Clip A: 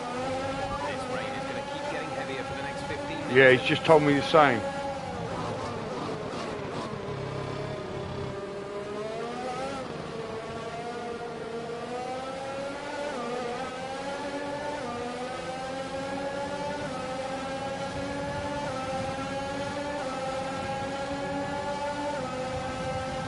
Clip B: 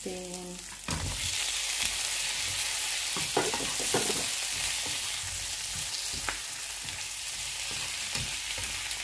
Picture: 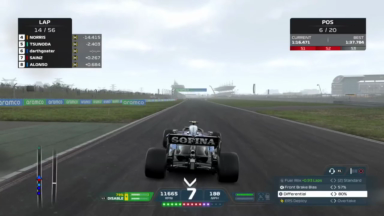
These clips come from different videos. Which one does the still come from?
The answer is A